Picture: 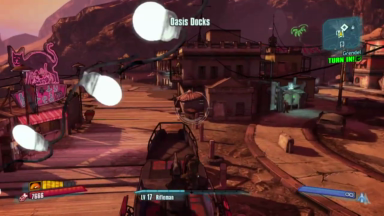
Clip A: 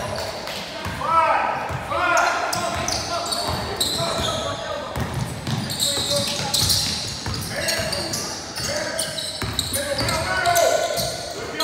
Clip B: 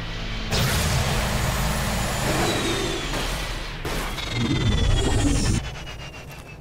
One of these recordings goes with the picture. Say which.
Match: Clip B